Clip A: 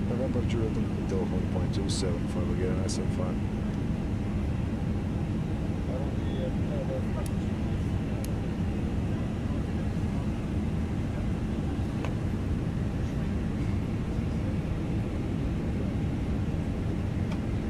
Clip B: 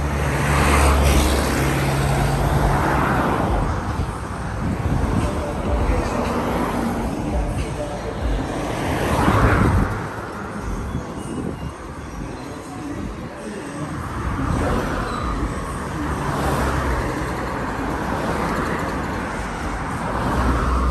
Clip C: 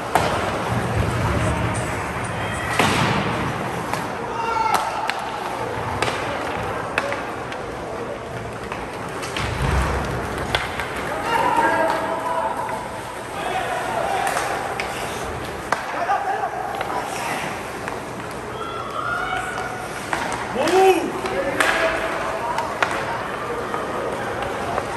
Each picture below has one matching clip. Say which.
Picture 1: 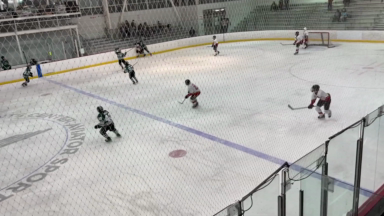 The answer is C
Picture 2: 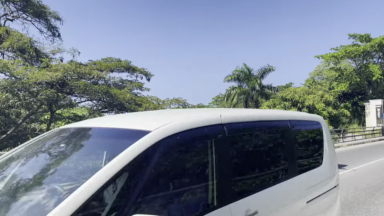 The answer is B